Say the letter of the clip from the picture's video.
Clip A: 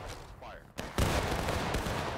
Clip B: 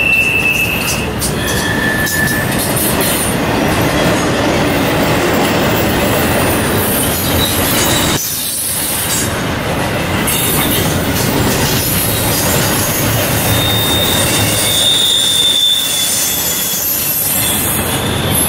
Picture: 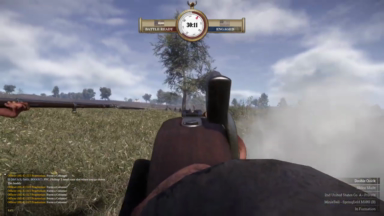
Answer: A